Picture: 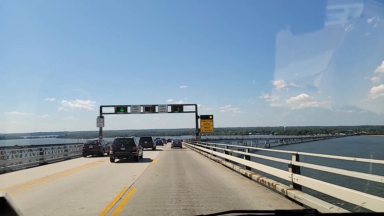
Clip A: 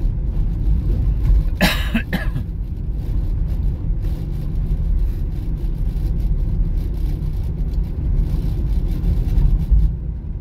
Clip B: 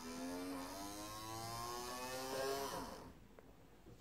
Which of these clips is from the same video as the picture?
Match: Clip A